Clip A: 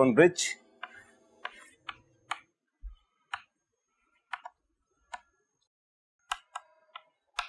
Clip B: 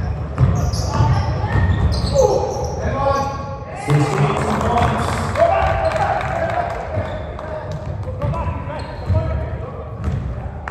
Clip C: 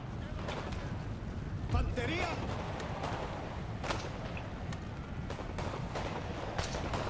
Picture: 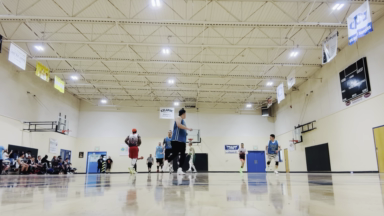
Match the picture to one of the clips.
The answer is B